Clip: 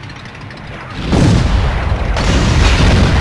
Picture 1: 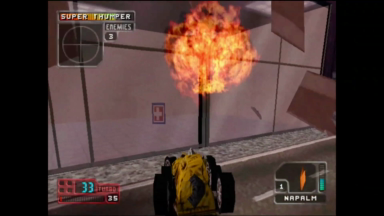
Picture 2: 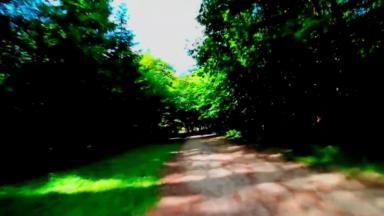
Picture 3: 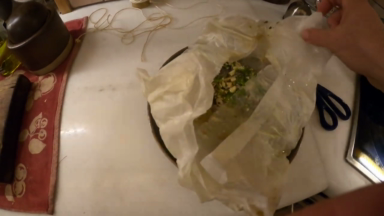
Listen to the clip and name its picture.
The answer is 1